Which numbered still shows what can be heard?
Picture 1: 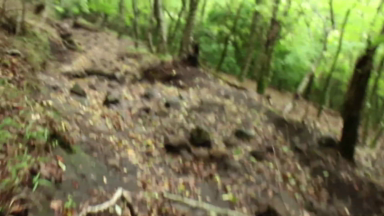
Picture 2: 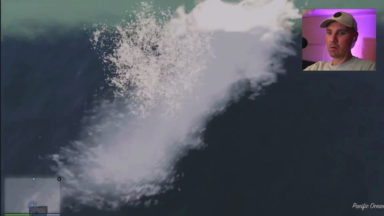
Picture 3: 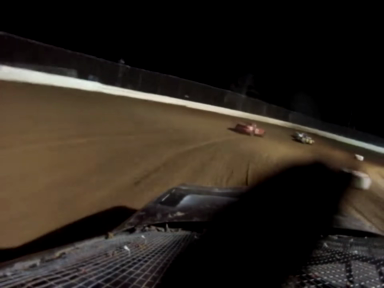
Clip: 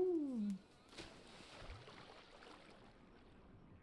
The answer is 2